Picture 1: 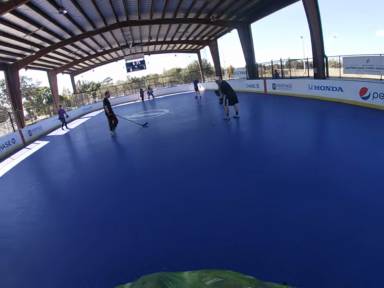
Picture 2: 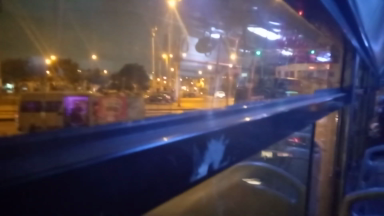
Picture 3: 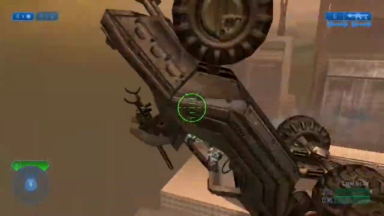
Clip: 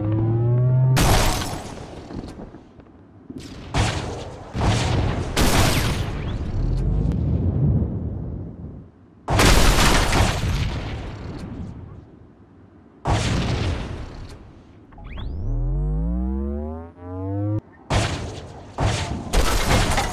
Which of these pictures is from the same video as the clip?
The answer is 3